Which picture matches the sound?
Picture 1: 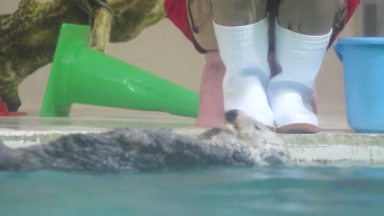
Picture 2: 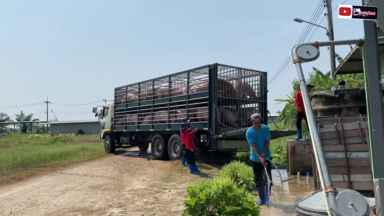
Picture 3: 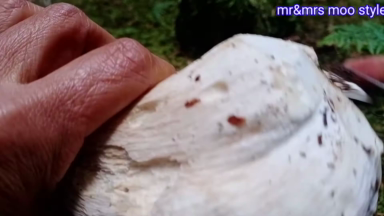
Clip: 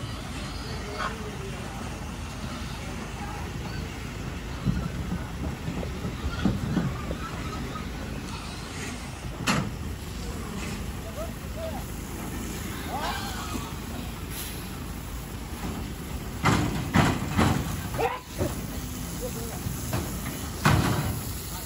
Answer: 2